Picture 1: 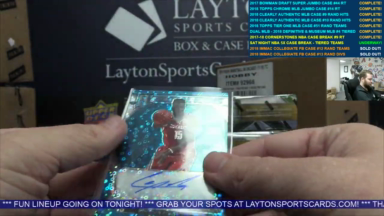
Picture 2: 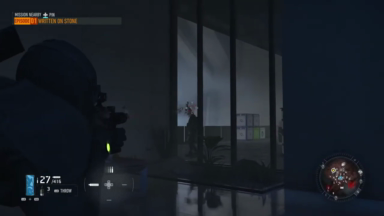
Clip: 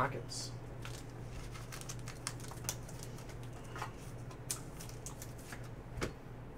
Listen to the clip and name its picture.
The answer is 1